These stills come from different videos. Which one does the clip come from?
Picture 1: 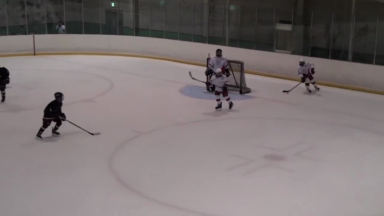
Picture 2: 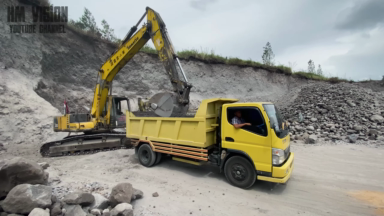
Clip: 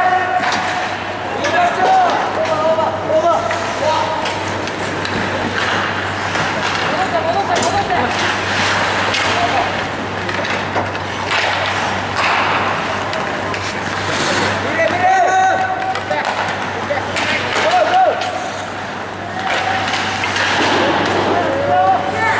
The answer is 1